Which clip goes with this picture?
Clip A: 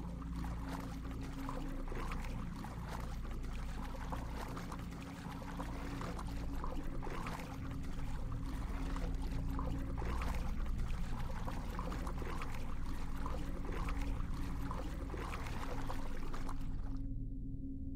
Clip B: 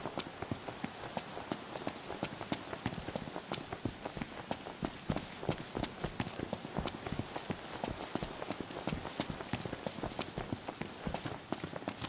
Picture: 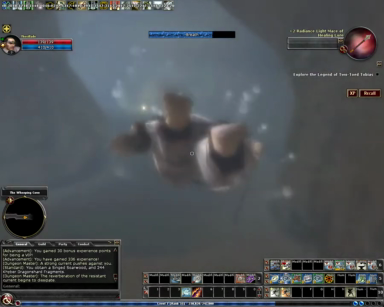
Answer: A